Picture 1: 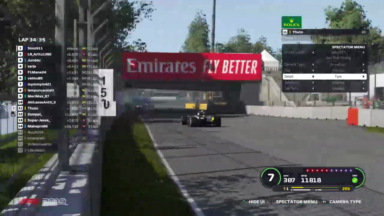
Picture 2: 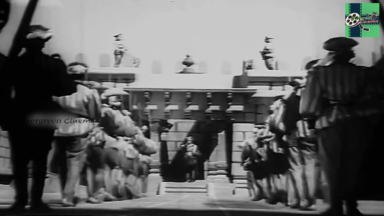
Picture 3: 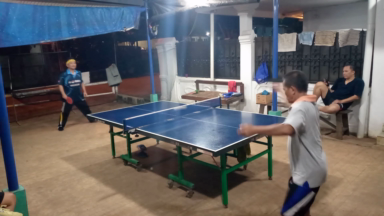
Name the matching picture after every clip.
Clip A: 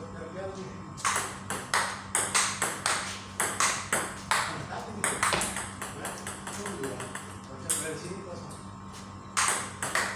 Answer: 3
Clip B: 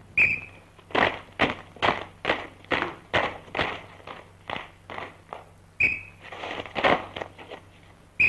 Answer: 2